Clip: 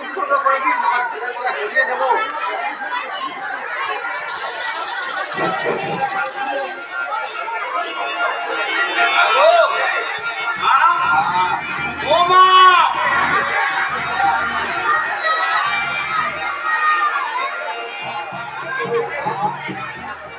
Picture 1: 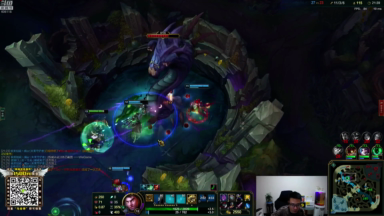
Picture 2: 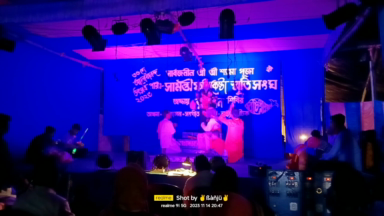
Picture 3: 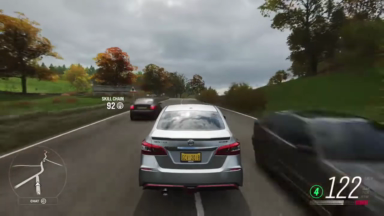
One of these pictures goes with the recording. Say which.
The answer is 2